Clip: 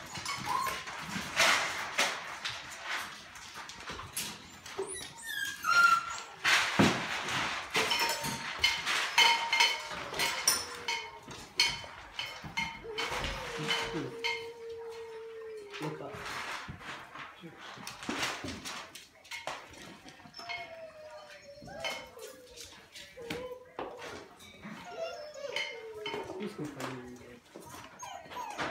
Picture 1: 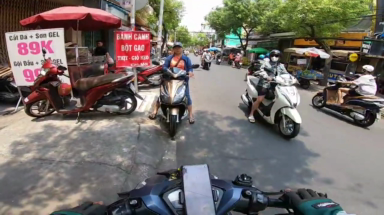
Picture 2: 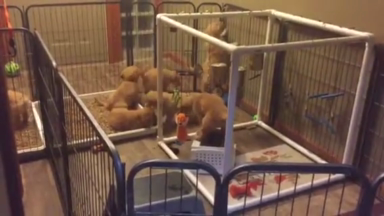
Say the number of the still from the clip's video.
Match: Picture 2